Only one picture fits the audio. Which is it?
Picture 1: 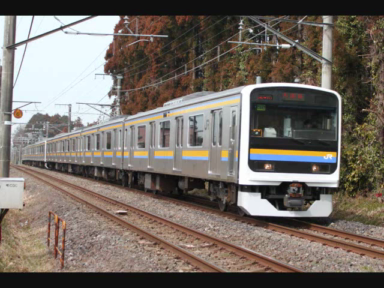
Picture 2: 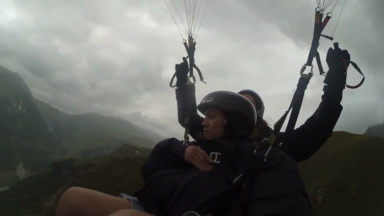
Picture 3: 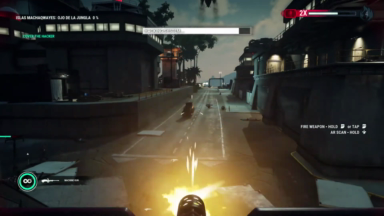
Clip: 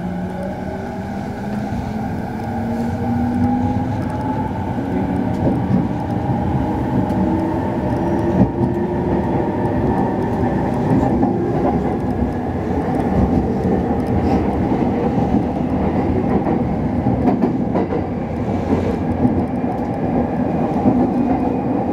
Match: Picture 1